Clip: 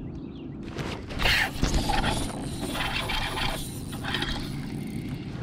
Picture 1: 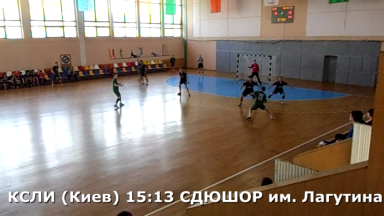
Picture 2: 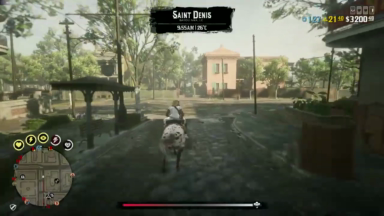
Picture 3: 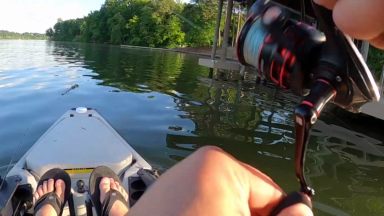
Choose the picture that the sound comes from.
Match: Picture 3